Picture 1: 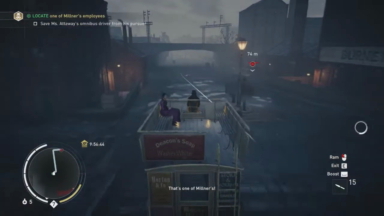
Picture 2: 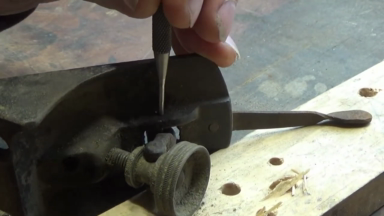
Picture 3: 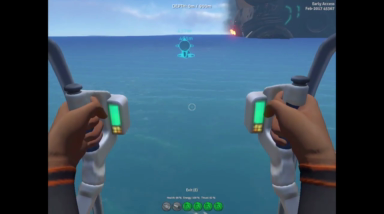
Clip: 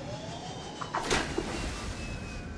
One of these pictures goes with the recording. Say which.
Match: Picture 3